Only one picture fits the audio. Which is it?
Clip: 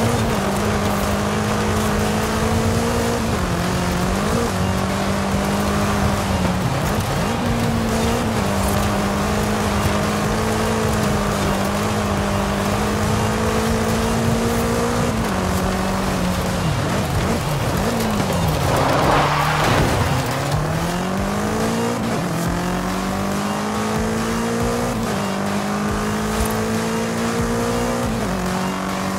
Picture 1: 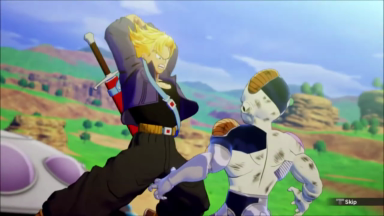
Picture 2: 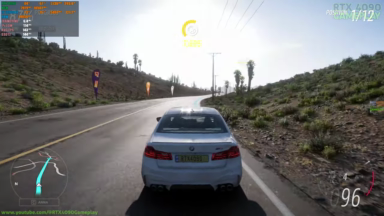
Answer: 2